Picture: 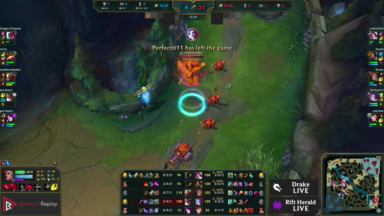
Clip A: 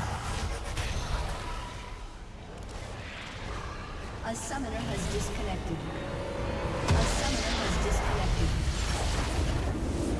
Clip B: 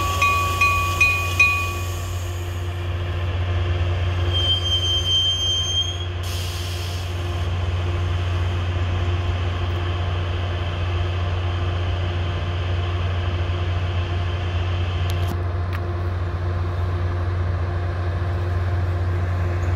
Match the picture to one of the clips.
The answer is A